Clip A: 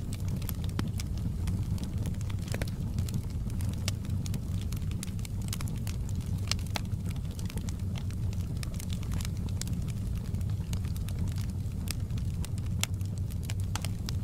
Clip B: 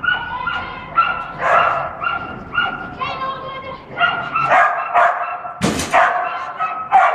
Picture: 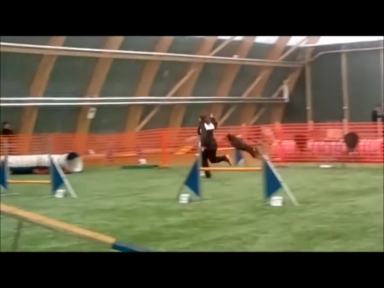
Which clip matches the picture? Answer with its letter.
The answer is B